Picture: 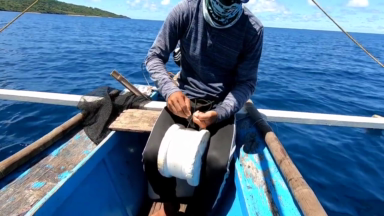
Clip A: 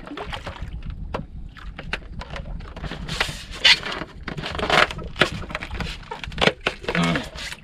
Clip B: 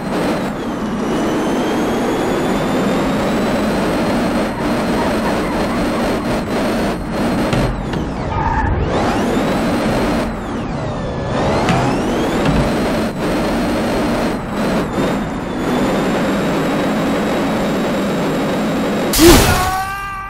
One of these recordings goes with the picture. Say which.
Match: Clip A